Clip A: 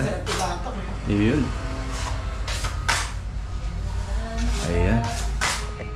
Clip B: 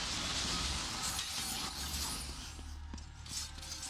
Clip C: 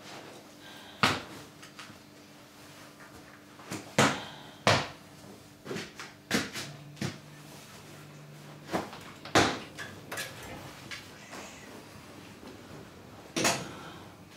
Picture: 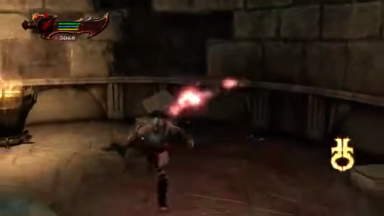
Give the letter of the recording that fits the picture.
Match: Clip B